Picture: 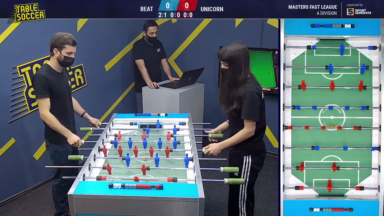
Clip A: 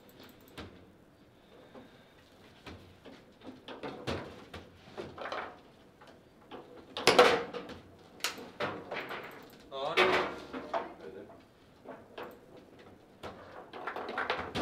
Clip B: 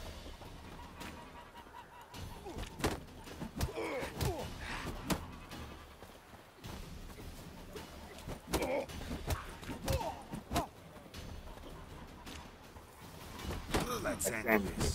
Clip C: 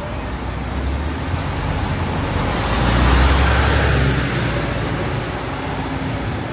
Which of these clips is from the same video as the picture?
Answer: A